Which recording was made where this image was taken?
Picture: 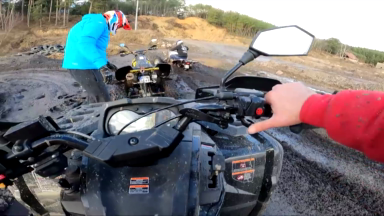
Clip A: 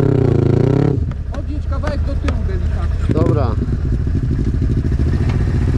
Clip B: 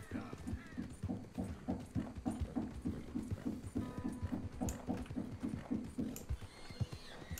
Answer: A